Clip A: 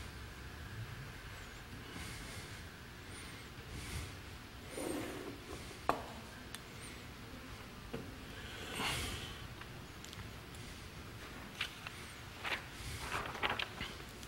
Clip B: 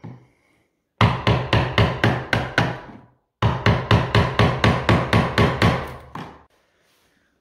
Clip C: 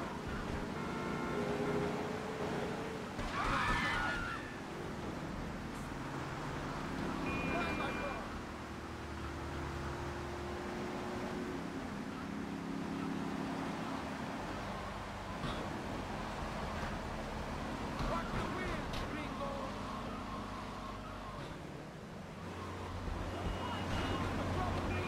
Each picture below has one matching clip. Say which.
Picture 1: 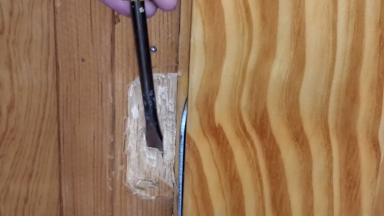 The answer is B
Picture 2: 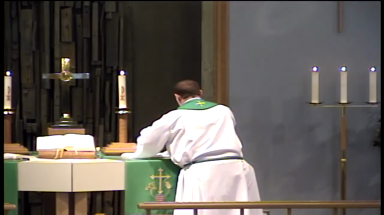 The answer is A